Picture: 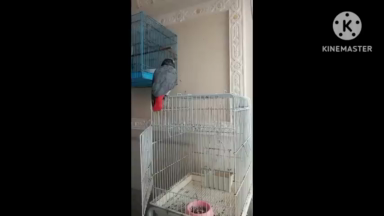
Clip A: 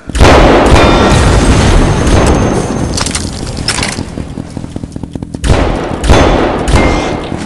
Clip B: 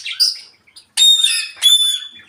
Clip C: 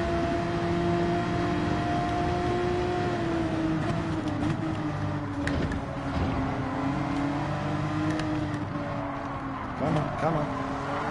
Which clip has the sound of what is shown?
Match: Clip B